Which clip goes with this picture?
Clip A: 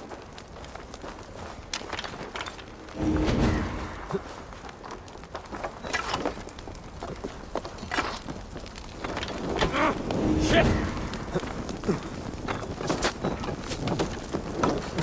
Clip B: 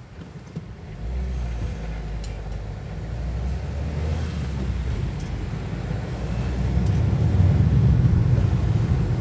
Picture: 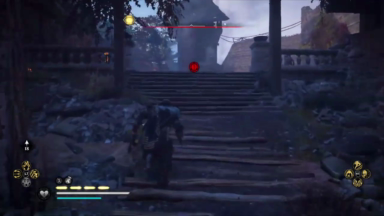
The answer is A